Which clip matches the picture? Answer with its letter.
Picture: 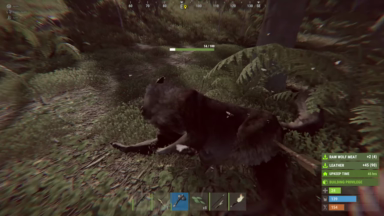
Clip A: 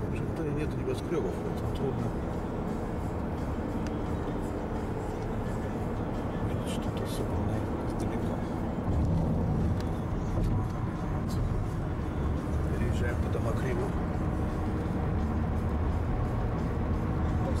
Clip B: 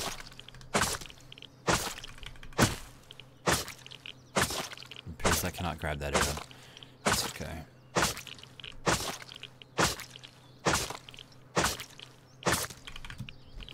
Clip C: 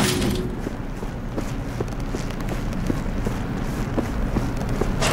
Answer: B